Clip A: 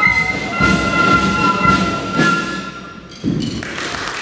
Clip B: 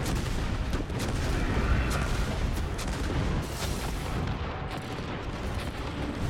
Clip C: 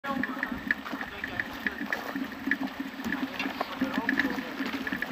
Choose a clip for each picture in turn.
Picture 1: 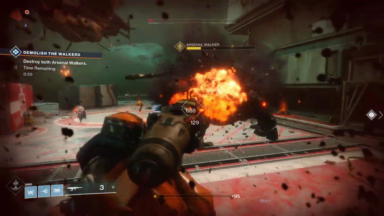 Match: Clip B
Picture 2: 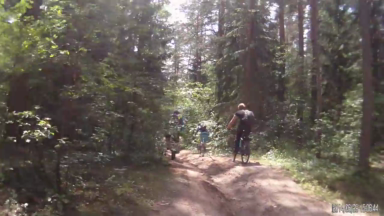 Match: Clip C